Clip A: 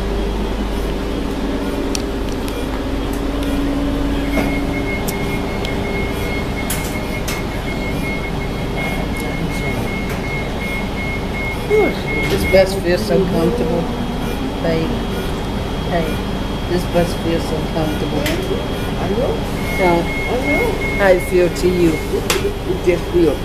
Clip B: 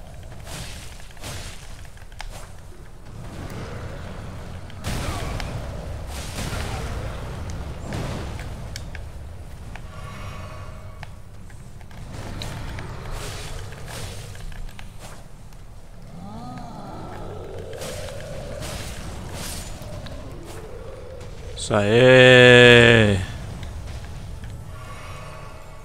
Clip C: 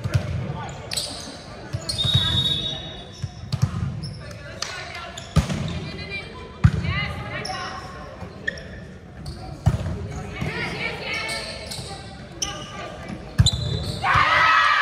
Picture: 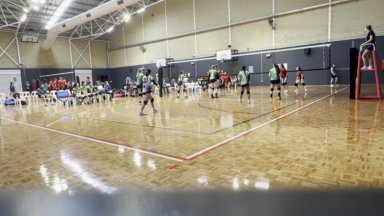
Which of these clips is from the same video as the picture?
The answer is C